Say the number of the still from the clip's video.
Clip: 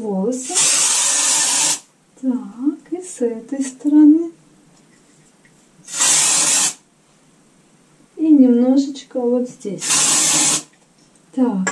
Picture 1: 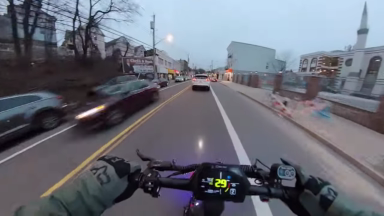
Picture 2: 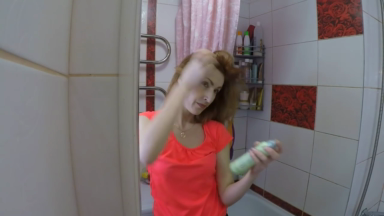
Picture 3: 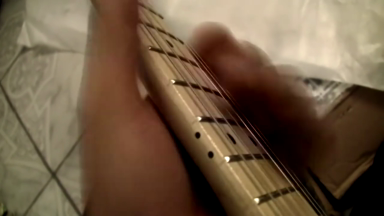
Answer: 2